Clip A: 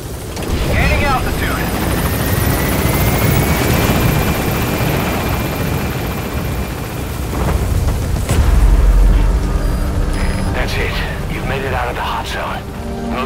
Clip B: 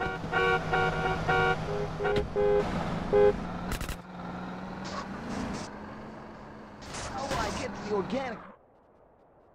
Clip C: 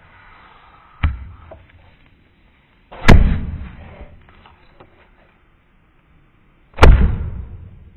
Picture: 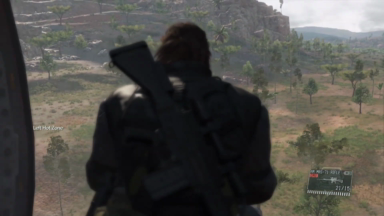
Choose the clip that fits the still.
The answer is A